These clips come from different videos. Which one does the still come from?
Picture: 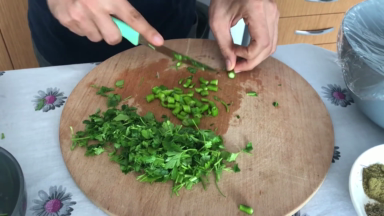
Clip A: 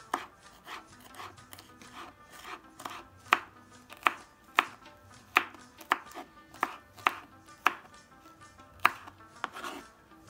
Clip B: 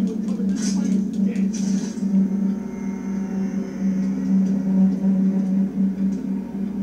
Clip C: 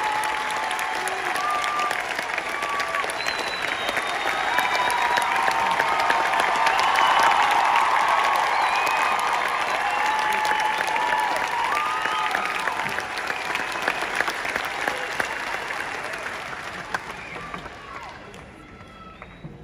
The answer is A